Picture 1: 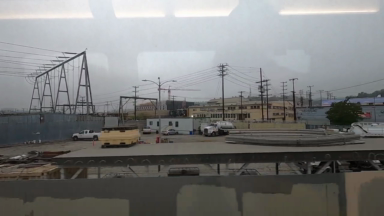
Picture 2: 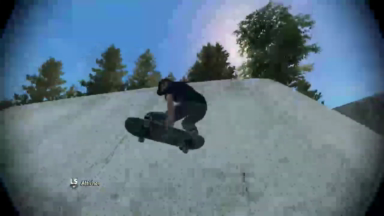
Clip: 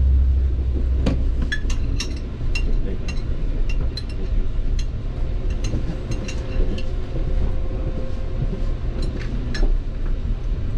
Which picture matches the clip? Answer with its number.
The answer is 1